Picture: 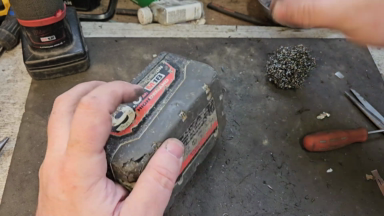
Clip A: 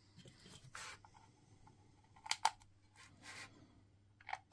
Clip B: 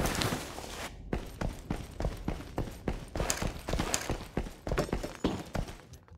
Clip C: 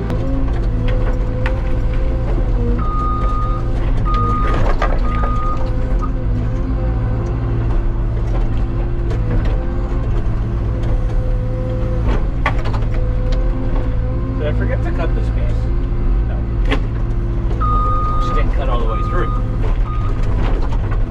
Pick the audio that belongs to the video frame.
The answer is A